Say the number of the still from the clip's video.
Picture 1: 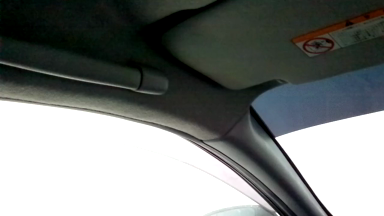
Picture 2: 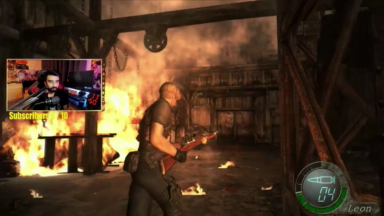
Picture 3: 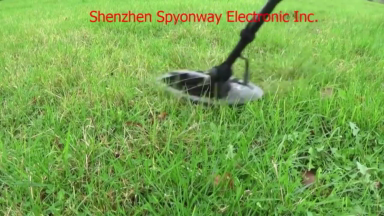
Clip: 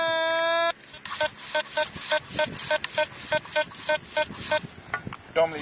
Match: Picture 3